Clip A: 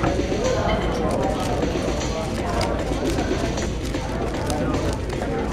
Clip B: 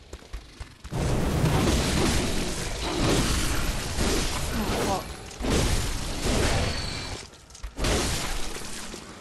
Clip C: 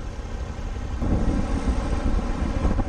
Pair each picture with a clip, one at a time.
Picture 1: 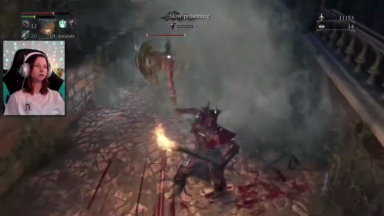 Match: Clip B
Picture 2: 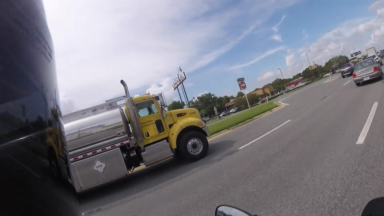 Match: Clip C